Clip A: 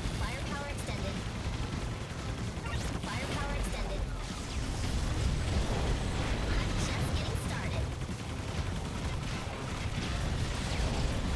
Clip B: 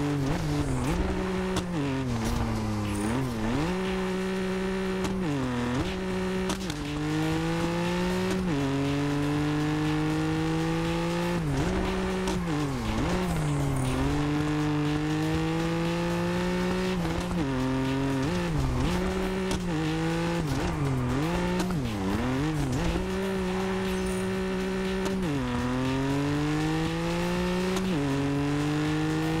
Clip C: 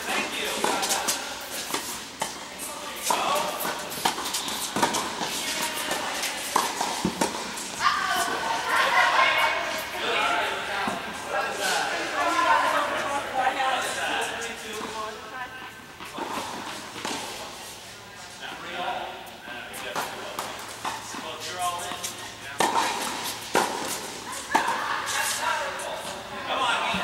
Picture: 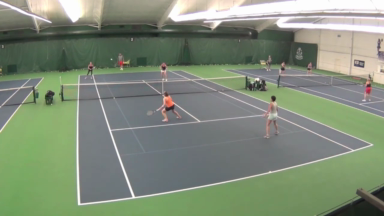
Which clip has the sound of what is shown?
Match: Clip C